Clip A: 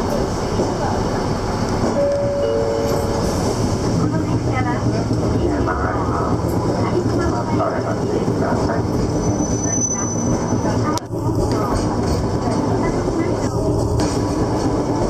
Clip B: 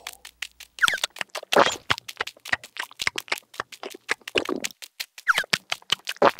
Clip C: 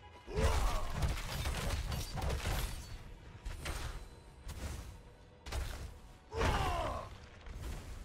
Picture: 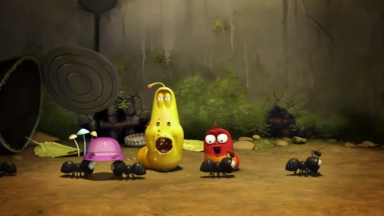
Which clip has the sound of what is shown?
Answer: B